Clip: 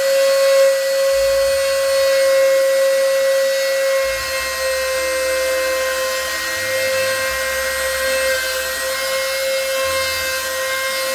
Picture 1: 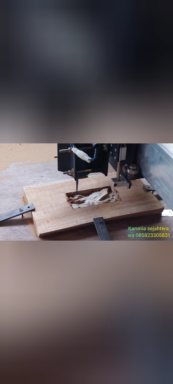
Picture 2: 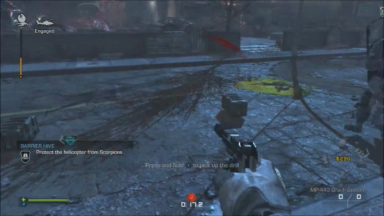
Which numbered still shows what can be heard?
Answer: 1